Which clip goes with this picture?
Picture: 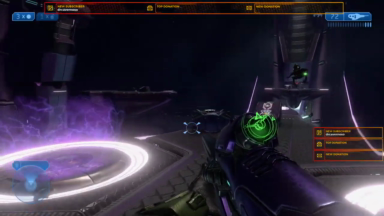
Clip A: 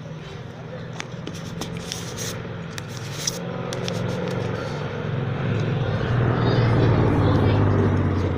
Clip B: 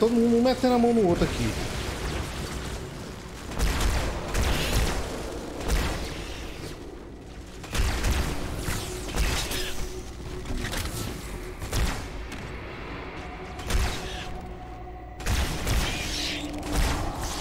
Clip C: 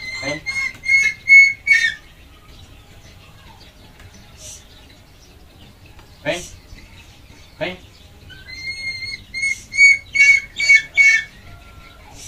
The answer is B